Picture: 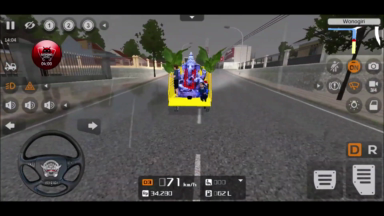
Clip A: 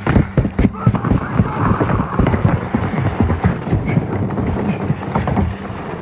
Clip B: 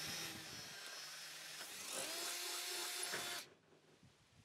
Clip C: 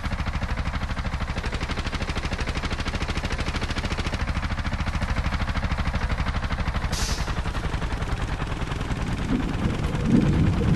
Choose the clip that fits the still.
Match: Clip C